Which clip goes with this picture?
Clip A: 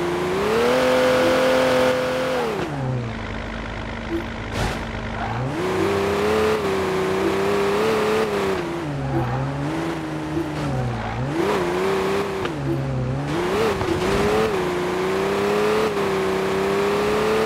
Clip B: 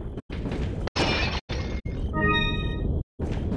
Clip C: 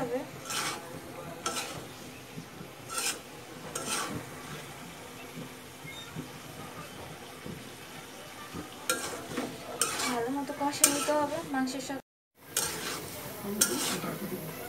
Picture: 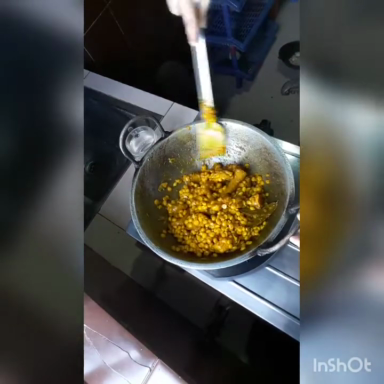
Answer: C